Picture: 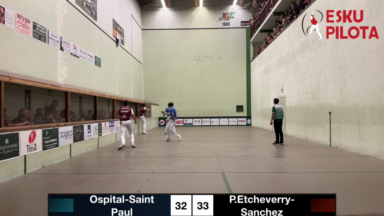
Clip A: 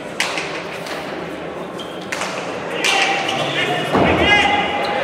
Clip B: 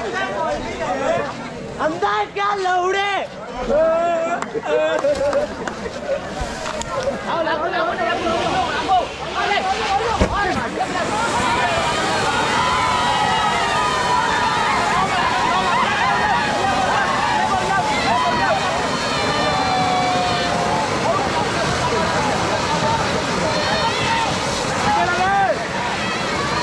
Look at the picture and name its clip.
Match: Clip A